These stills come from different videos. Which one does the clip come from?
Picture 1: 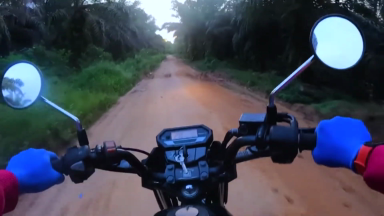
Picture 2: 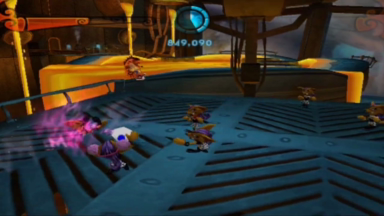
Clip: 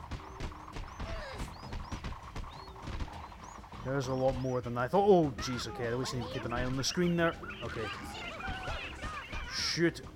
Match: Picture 2